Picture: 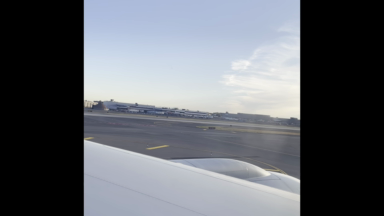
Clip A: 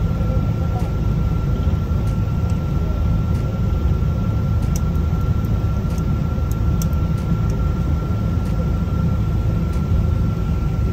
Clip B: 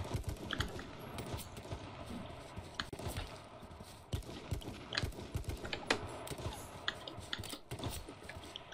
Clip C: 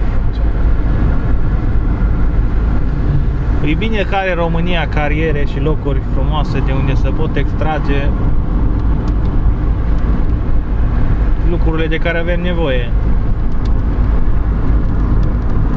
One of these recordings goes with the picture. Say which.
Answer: A